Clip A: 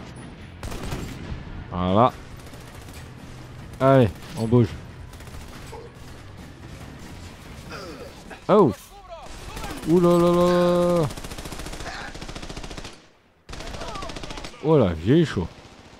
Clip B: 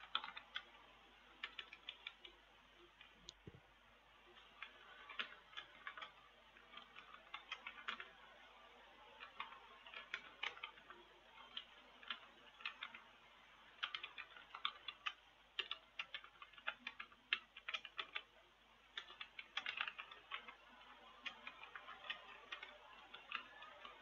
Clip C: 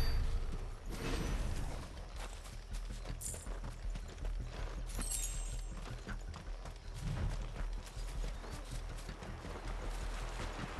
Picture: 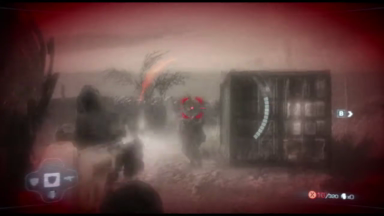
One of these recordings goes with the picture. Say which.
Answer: A